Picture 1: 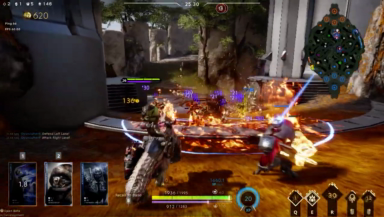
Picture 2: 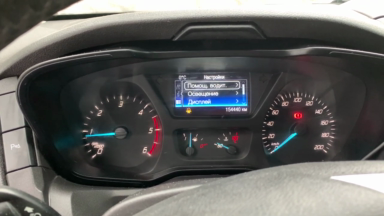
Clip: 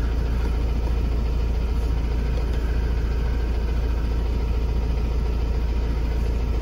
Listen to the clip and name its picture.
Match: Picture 2